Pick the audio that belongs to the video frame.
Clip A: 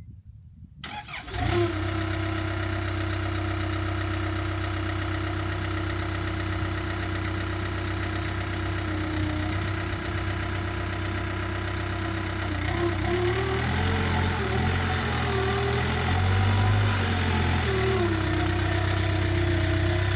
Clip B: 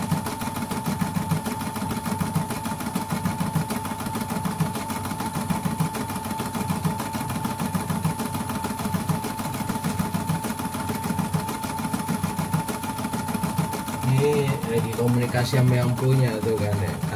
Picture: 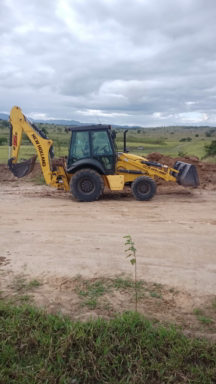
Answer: A